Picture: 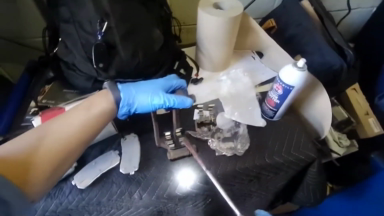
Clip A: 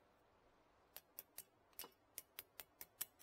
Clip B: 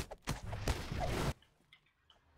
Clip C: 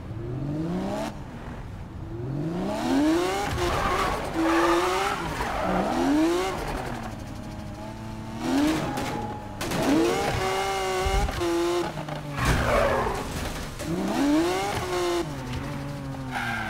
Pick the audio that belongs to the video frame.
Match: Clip A